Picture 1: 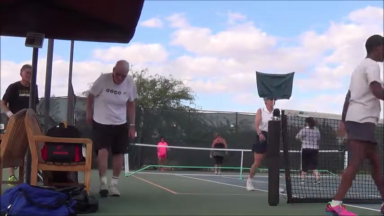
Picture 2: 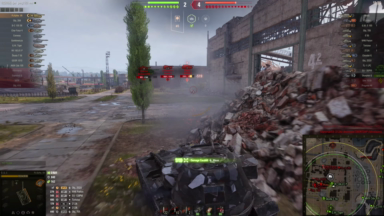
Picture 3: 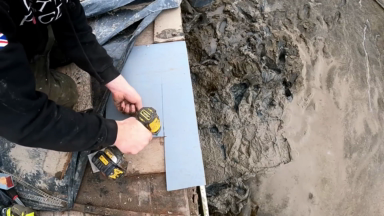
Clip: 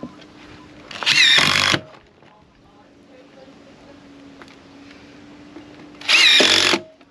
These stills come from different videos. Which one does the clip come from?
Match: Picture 3